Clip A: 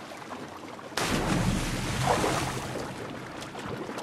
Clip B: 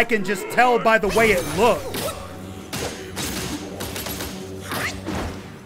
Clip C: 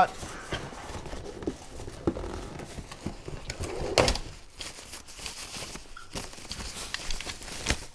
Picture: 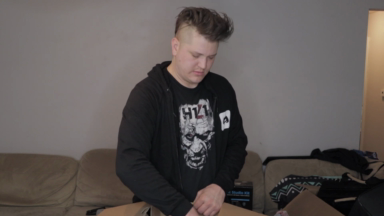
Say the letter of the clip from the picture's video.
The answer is C